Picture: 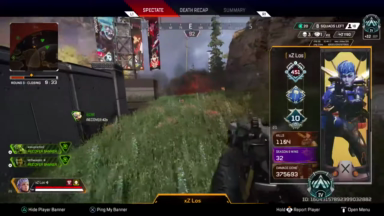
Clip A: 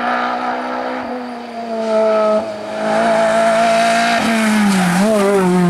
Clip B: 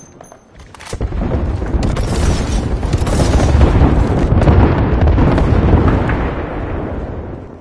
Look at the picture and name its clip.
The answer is B